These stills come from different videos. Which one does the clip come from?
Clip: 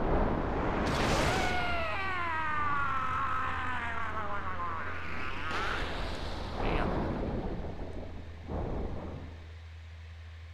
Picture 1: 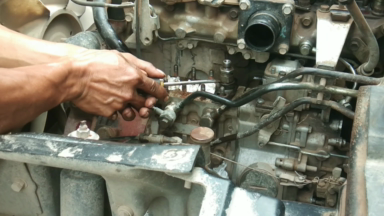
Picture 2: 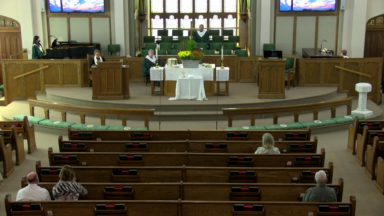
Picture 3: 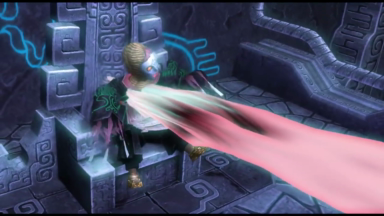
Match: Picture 3